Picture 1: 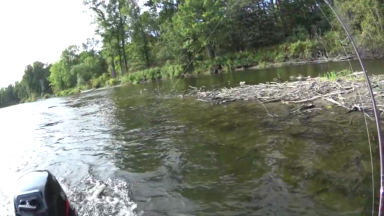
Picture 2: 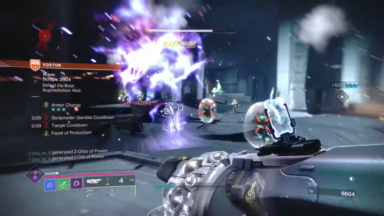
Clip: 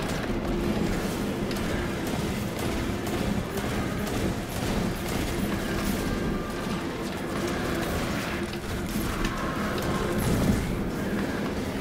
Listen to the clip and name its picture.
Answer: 2